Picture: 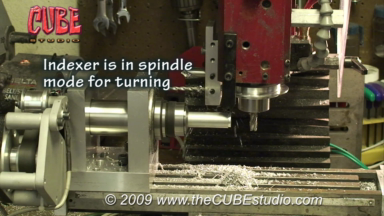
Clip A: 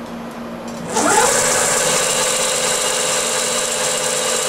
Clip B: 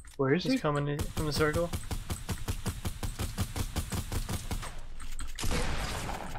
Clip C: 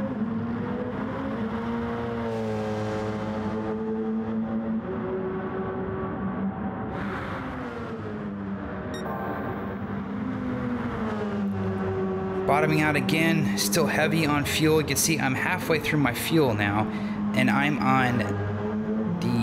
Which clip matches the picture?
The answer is A